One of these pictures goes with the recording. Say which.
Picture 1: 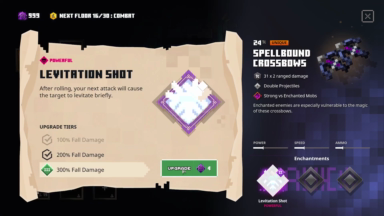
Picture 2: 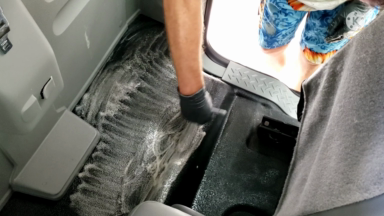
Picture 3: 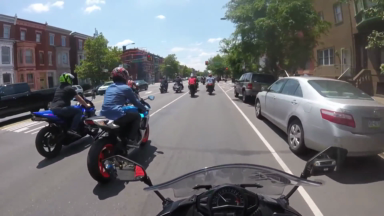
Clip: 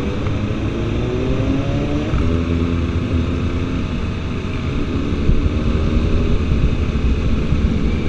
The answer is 3